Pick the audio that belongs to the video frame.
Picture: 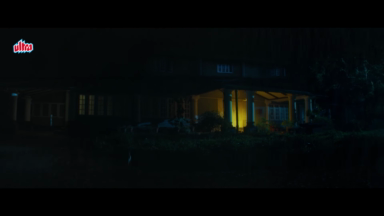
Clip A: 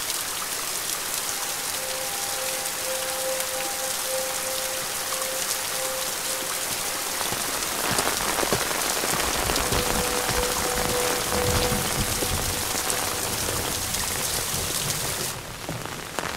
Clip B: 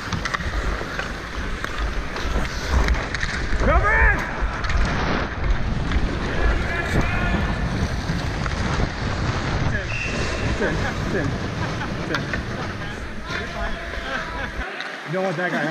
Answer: A